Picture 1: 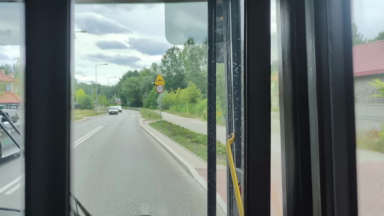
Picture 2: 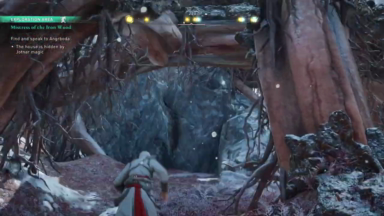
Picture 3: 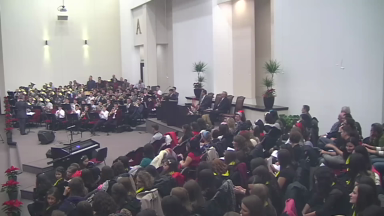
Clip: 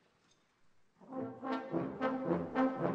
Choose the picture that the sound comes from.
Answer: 3